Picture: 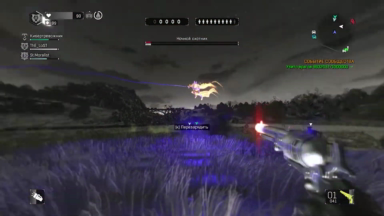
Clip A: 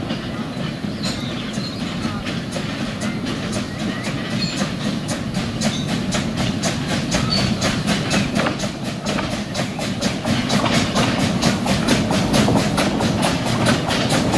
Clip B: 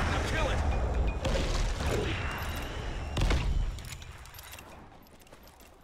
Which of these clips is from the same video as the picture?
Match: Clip B